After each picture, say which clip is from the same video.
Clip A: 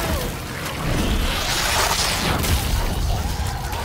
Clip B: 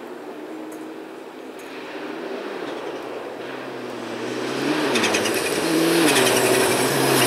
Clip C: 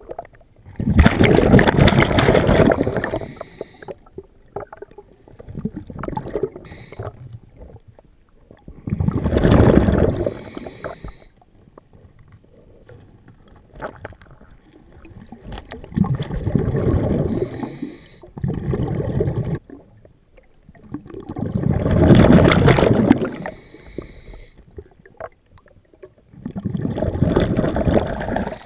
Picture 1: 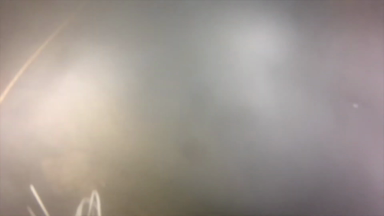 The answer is C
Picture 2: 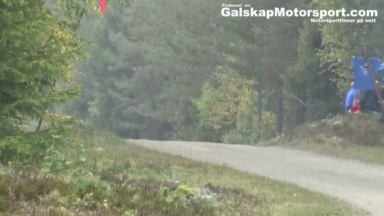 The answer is B